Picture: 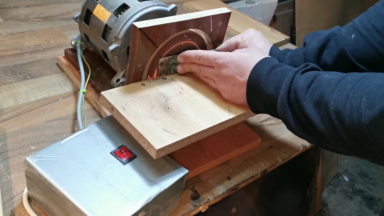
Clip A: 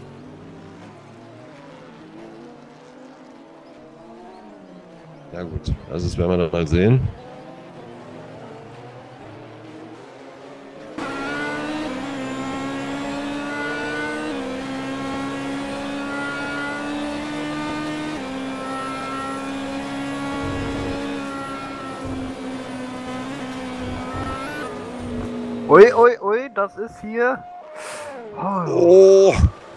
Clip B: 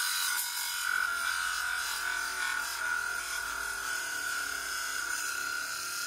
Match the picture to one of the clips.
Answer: B